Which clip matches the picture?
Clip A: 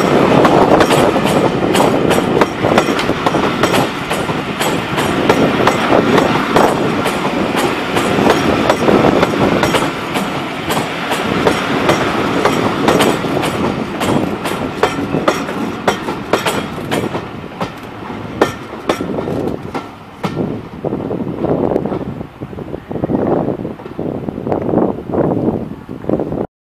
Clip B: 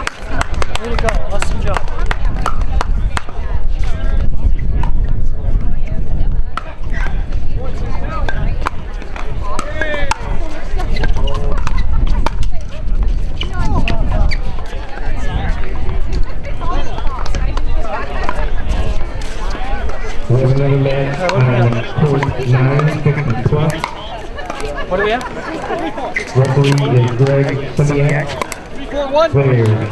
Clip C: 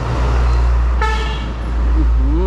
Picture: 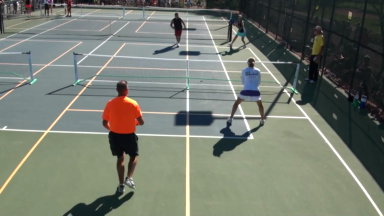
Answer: B